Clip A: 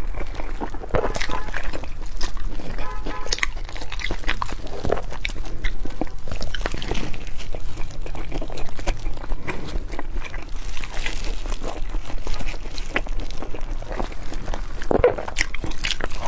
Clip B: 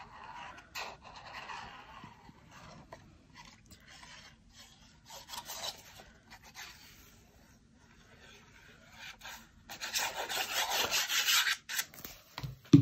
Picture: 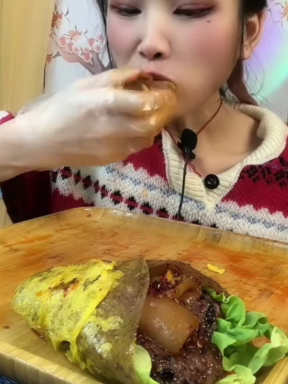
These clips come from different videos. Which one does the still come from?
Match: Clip A